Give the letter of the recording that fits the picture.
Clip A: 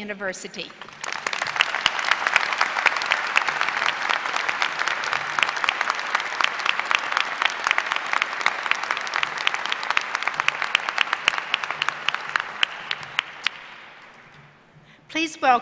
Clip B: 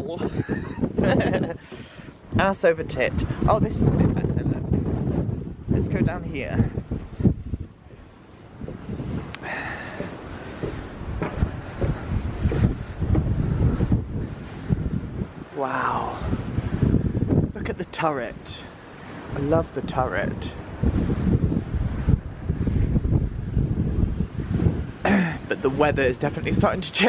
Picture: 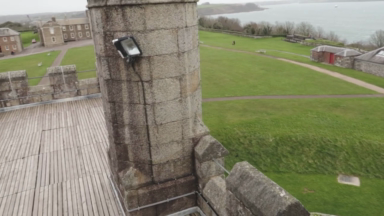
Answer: B